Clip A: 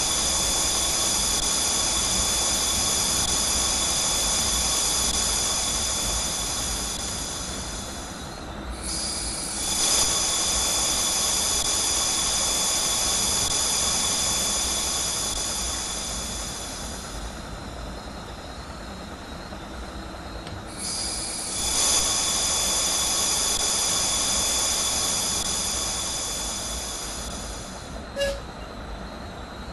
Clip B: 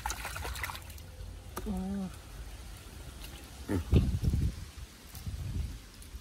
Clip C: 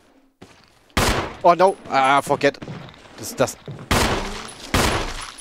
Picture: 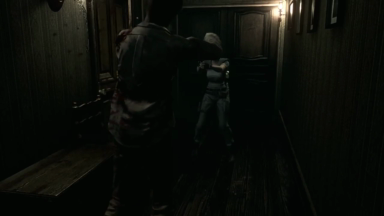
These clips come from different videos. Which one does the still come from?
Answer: C